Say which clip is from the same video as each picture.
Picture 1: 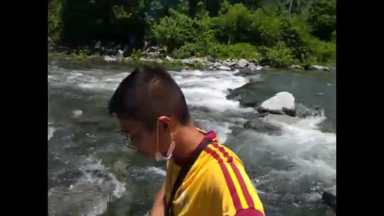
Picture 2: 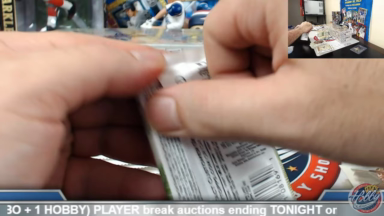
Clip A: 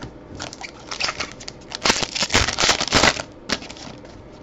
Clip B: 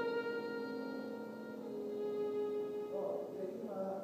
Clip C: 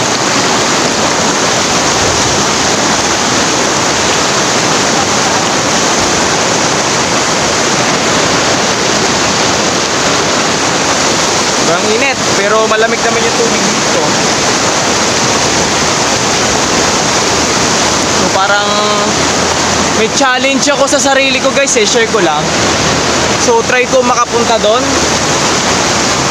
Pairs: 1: C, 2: A